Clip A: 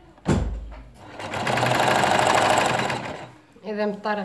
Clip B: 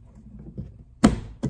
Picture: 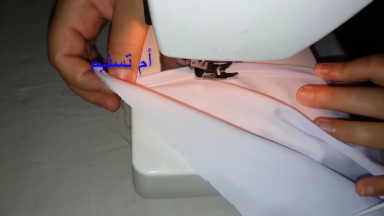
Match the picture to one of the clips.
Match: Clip A